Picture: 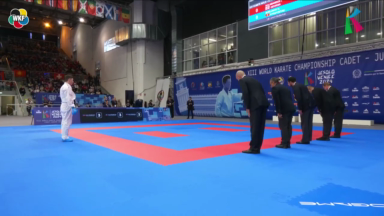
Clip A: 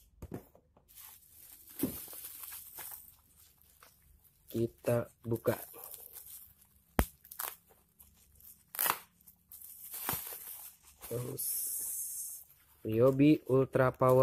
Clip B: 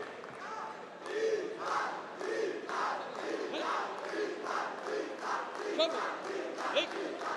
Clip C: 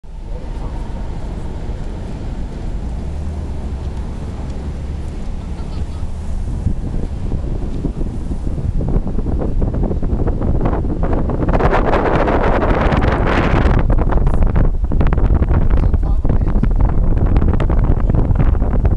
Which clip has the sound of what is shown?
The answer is B